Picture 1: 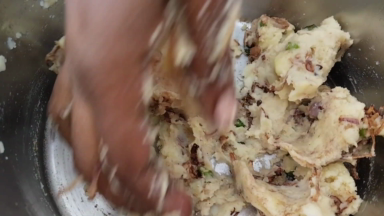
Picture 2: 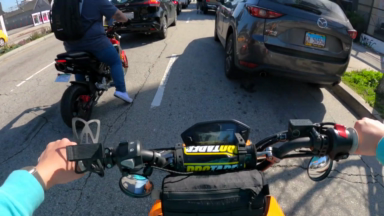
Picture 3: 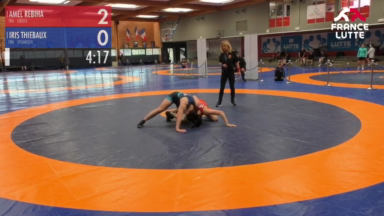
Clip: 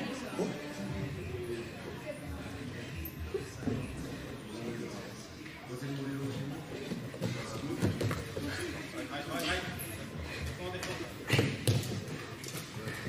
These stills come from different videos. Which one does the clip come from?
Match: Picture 3